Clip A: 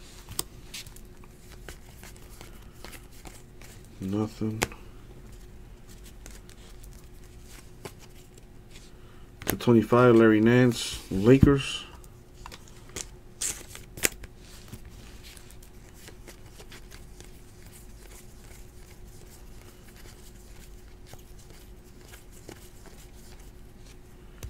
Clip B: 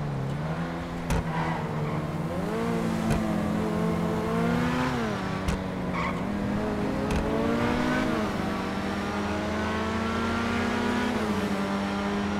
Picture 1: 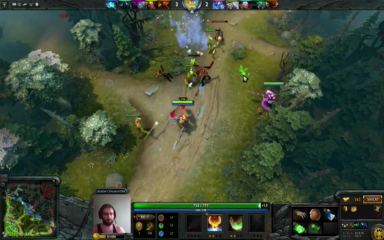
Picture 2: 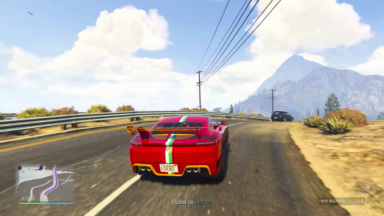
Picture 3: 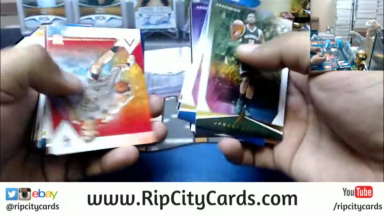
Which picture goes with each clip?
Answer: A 3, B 2